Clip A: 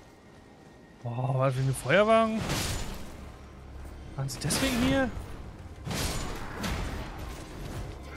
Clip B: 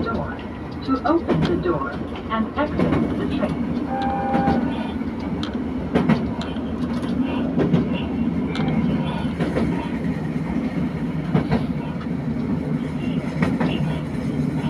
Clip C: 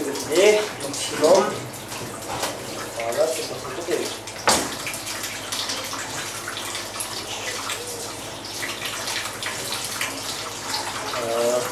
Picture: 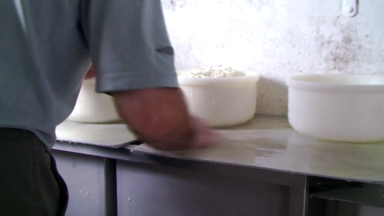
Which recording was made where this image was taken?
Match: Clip C